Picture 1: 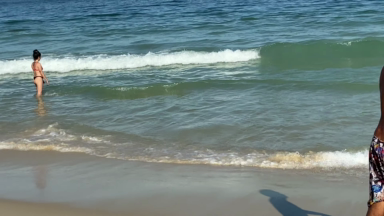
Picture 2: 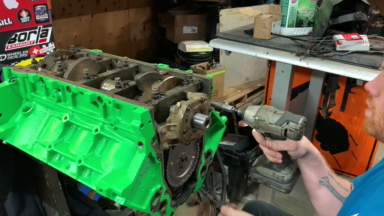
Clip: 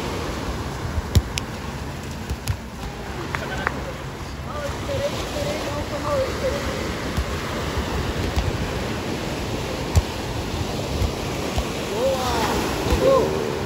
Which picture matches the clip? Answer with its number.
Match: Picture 1